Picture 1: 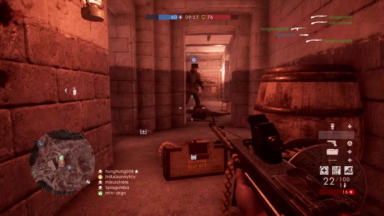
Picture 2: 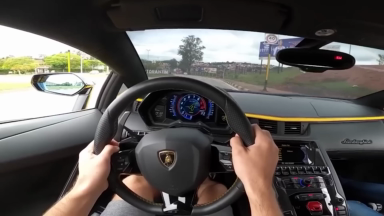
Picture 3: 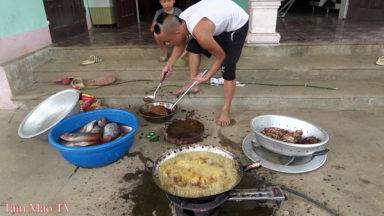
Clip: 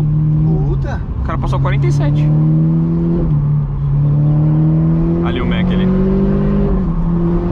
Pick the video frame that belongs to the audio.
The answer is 2